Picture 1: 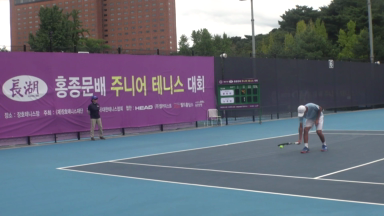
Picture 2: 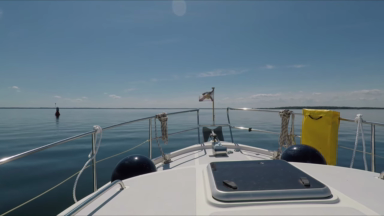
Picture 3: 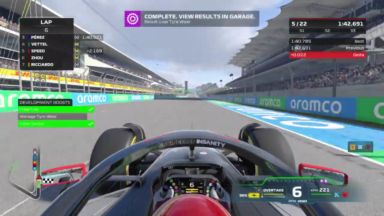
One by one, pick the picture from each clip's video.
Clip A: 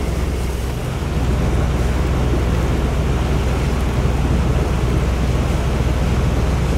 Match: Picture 2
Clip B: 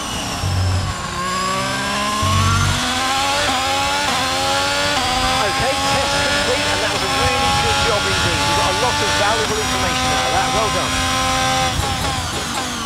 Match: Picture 3